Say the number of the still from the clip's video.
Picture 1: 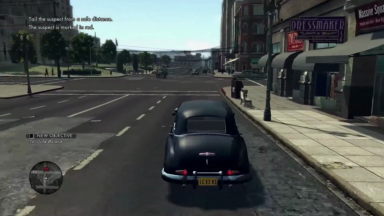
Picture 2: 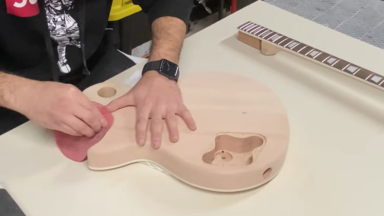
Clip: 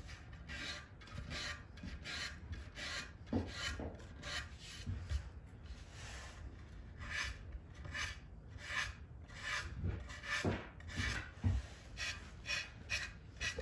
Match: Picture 2